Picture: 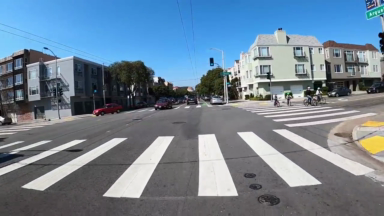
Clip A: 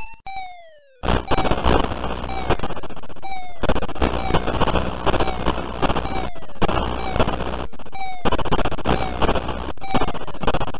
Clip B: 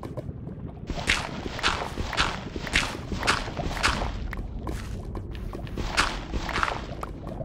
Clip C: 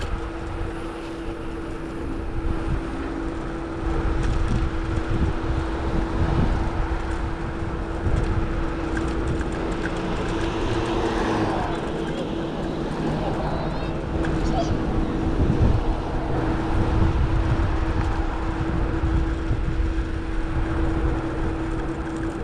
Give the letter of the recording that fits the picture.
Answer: C